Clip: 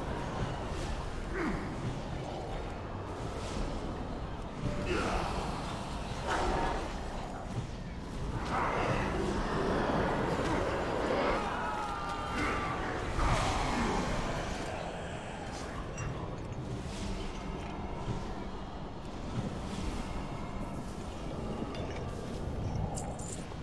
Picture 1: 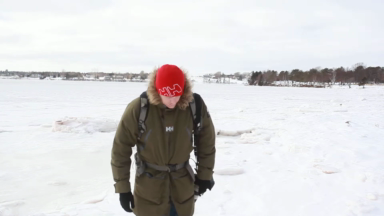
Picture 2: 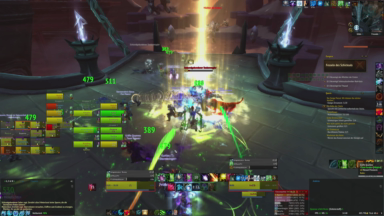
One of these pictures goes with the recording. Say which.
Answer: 2